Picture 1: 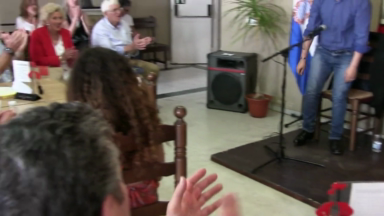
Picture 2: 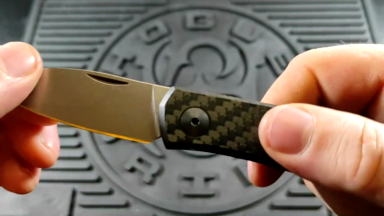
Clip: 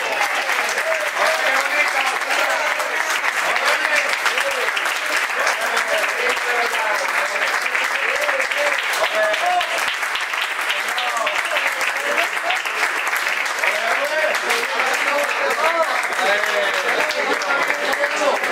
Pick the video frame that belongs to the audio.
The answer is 1